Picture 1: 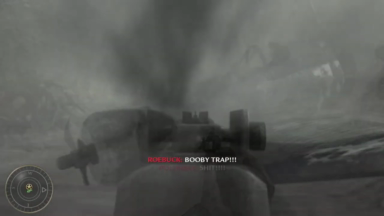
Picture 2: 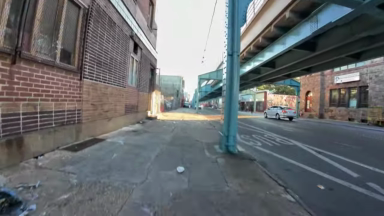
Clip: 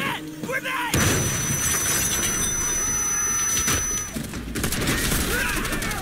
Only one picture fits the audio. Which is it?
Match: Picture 1